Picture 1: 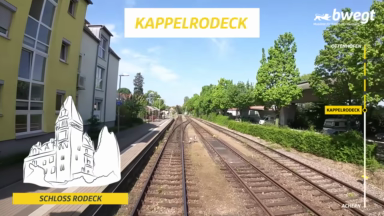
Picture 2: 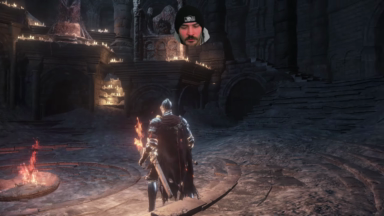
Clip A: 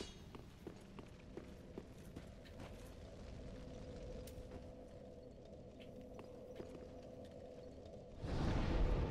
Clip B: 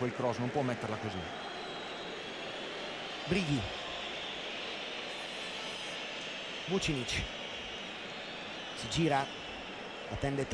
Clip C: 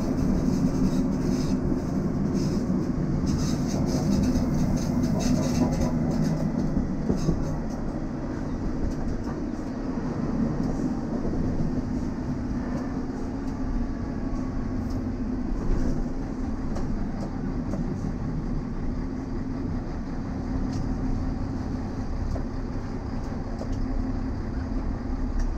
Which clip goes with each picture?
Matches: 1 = C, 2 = A